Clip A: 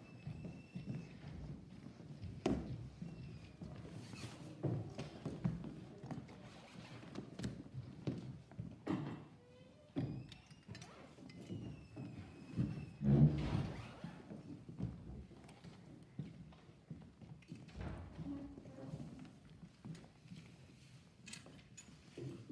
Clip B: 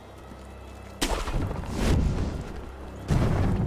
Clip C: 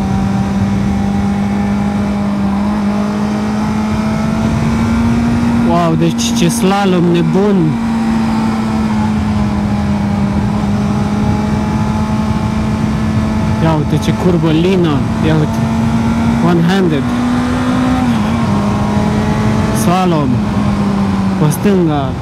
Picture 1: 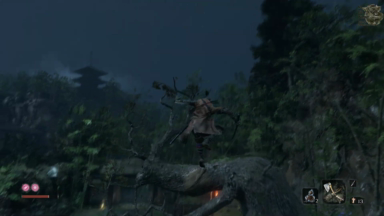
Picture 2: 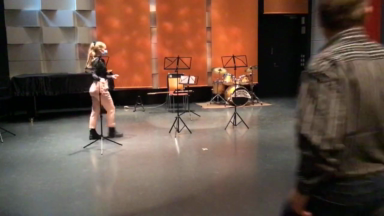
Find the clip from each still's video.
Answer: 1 B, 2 A